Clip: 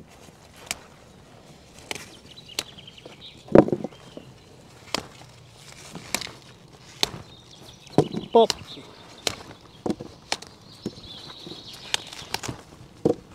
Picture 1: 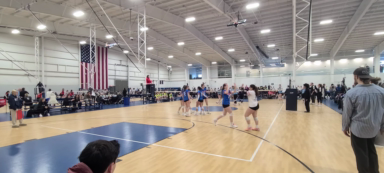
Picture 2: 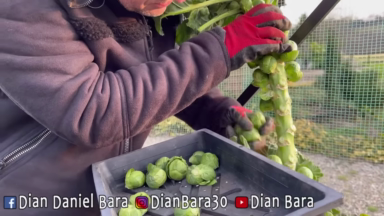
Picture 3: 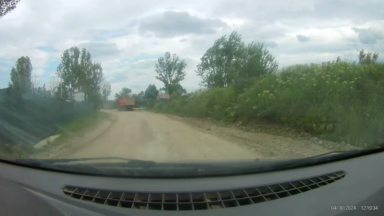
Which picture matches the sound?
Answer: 2